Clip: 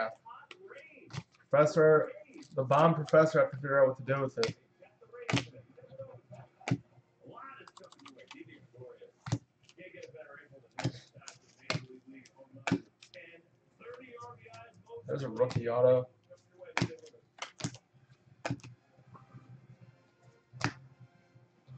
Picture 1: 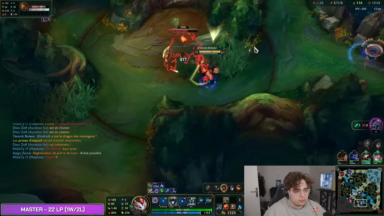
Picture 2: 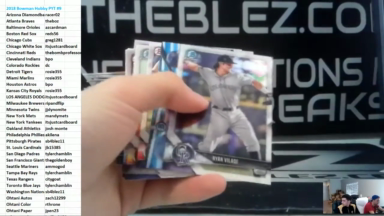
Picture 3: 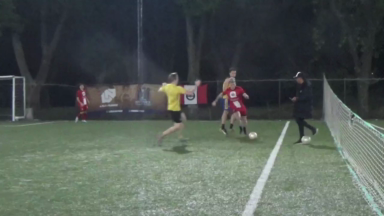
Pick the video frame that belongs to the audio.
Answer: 2